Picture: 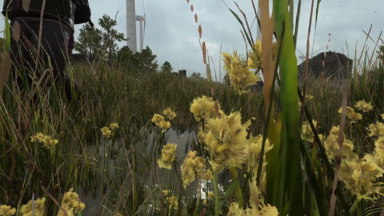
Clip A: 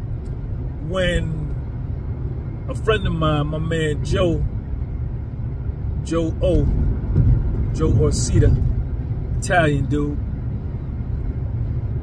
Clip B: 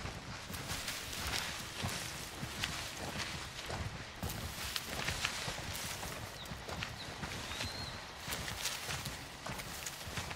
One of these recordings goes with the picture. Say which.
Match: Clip B